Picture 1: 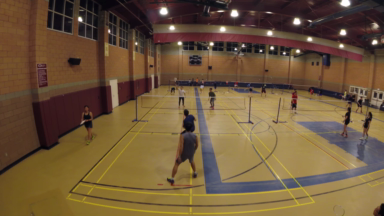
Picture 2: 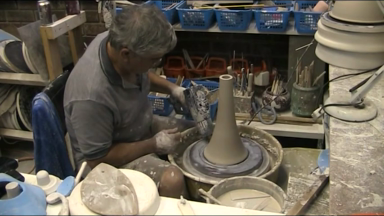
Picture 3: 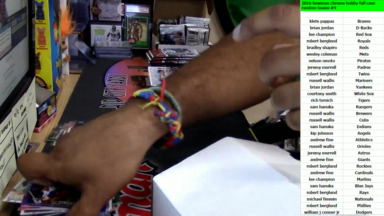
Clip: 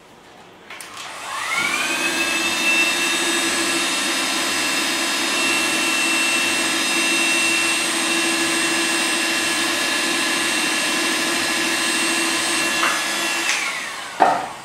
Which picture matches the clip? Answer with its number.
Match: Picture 2